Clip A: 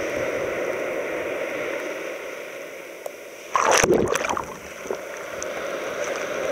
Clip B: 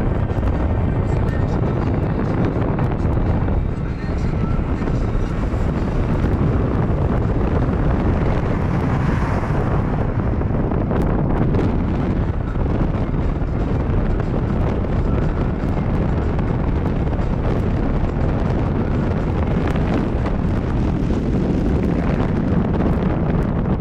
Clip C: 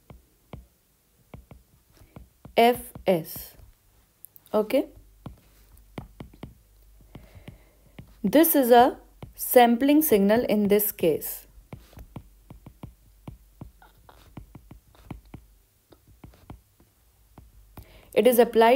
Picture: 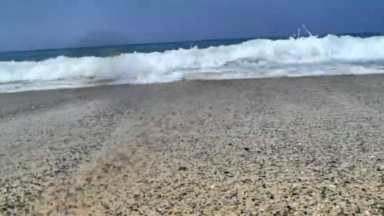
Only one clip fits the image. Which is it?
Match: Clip A